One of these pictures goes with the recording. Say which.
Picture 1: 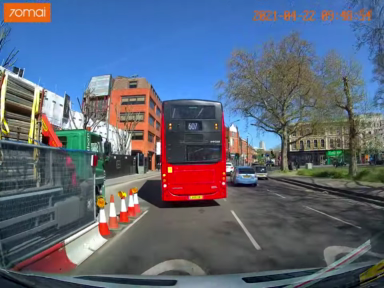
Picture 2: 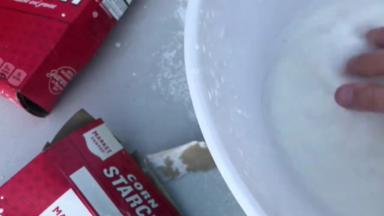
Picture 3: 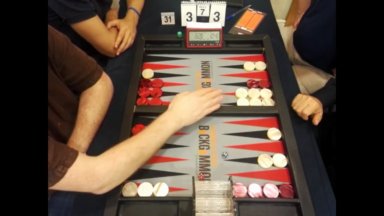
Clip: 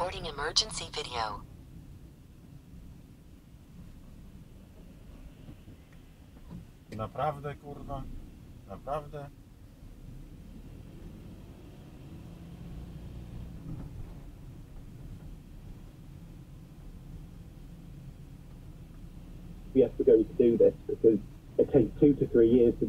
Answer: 1